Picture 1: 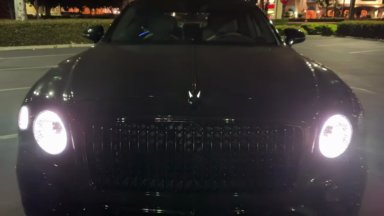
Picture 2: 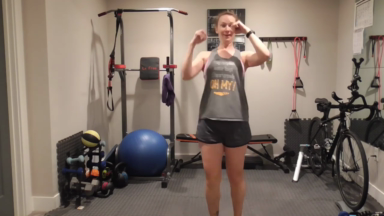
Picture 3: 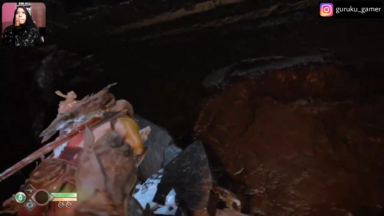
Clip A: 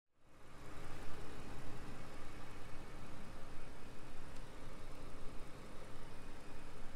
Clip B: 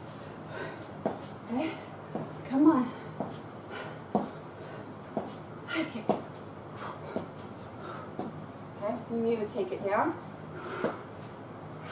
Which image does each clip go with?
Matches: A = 1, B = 2